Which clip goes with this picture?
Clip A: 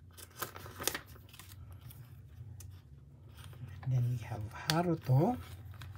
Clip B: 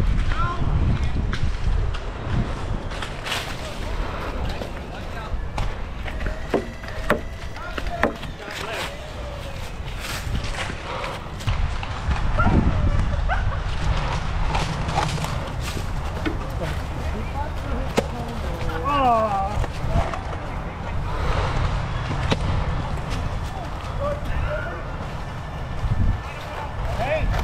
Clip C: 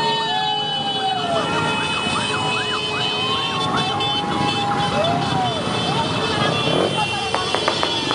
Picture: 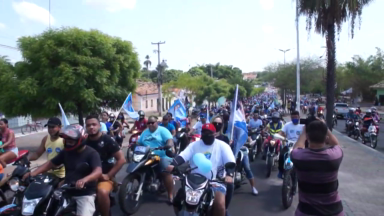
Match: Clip C